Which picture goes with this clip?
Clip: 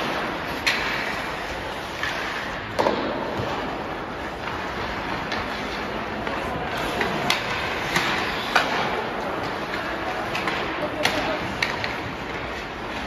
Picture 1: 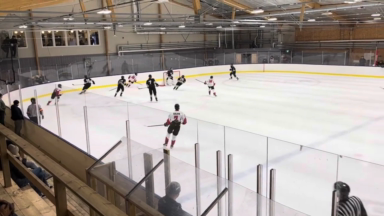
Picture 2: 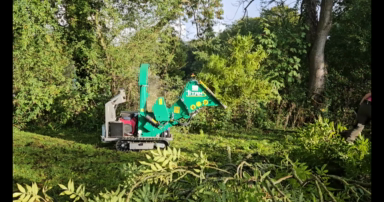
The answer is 1